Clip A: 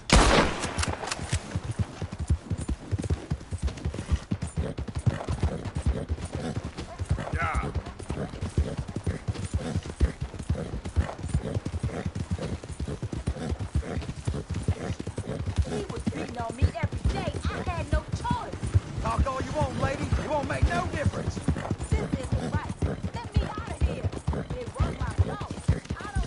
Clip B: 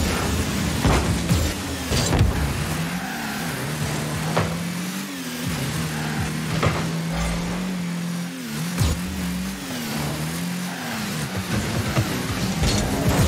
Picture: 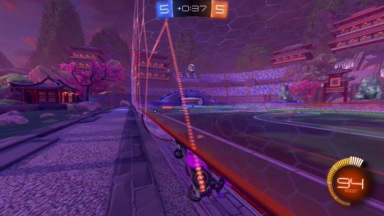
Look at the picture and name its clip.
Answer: B